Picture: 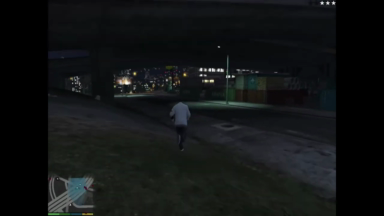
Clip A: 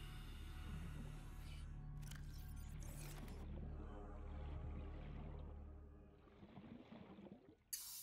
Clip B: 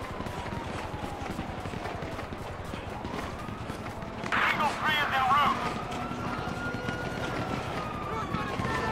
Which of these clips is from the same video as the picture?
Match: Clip B